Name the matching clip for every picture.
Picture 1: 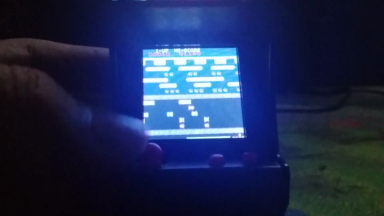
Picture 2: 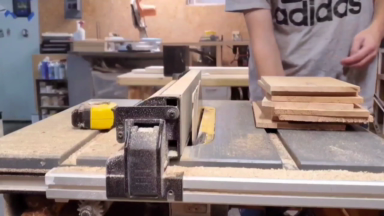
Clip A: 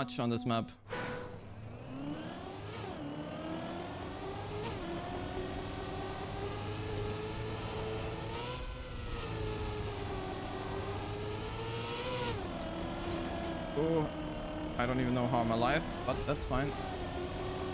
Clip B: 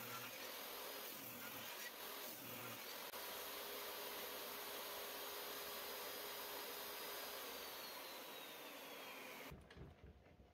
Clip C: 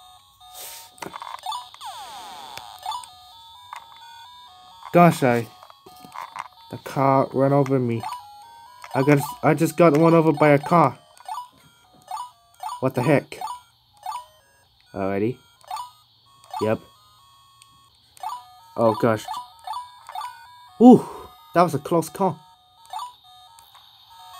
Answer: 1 C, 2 B